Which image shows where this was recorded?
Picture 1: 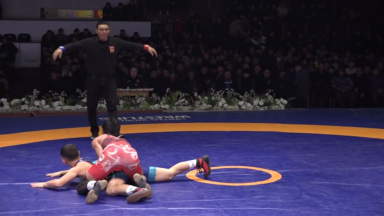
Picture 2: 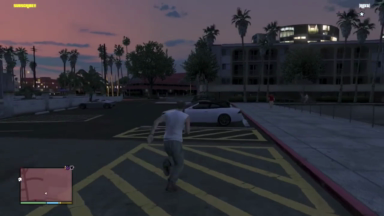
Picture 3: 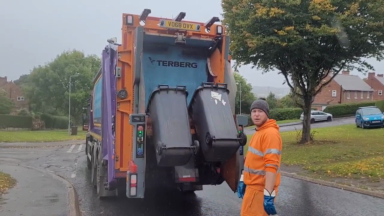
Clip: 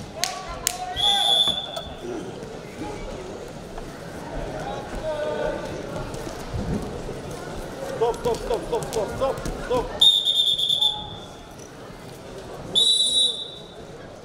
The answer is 1